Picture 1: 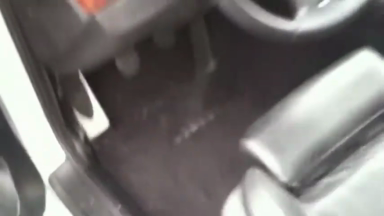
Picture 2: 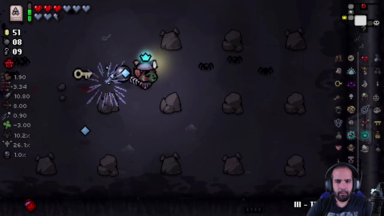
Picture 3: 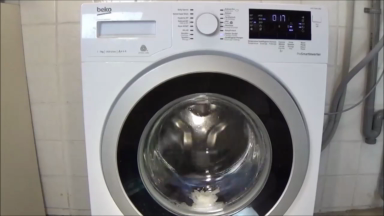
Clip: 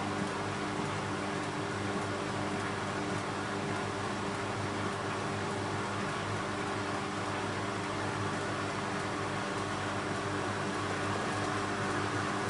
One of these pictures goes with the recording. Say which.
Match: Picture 3